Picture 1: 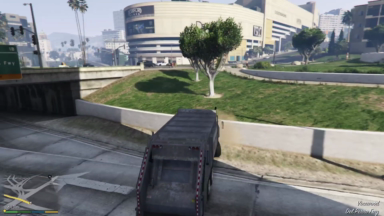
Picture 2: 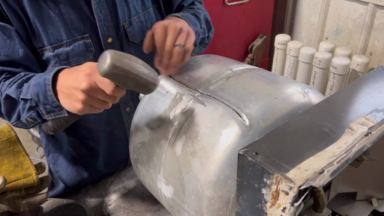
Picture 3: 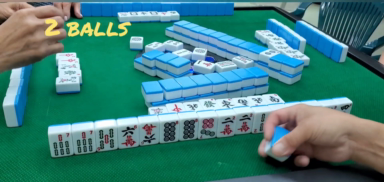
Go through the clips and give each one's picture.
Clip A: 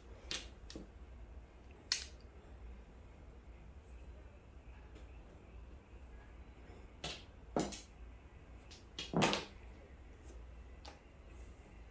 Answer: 3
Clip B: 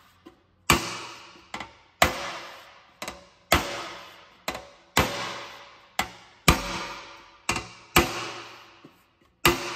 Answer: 2